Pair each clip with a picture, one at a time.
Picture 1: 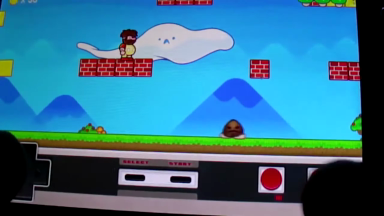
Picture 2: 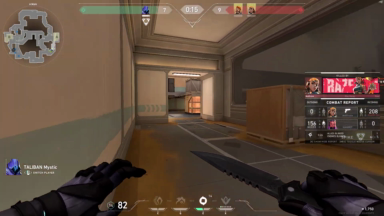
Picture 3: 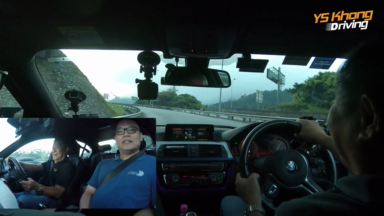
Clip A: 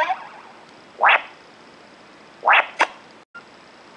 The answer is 1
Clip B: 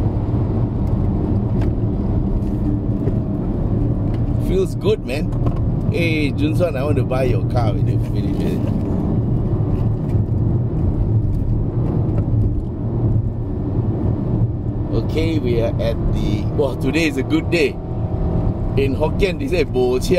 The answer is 3